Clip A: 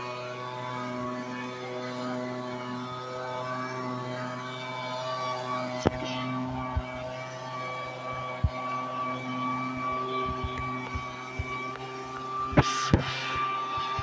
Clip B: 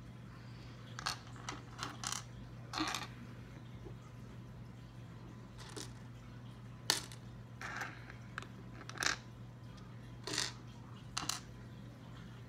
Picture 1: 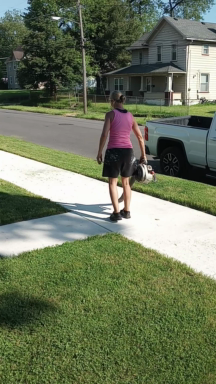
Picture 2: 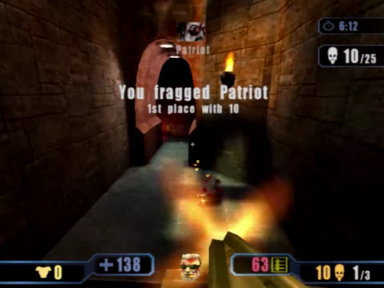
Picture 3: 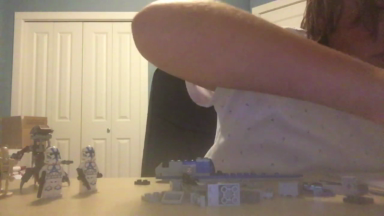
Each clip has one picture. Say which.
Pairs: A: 1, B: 3